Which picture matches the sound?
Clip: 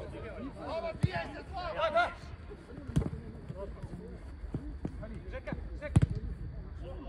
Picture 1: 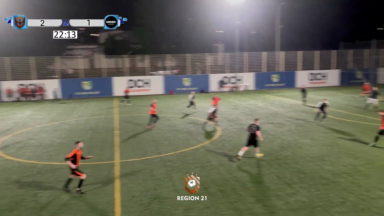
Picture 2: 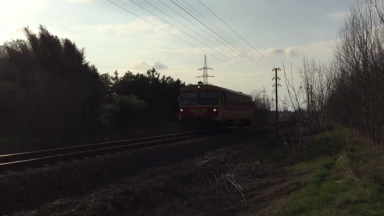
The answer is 1